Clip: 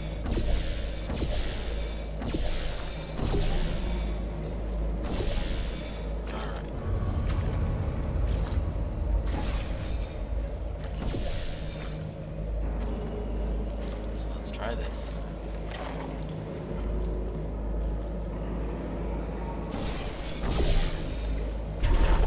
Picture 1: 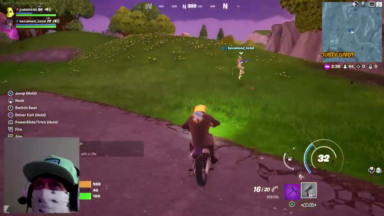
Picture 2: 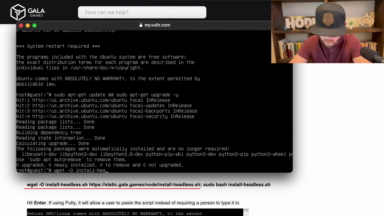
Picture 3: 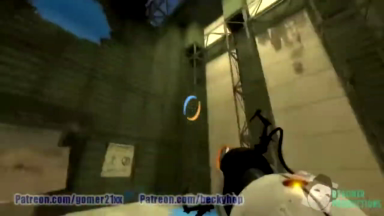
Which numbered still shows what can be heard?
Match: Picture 3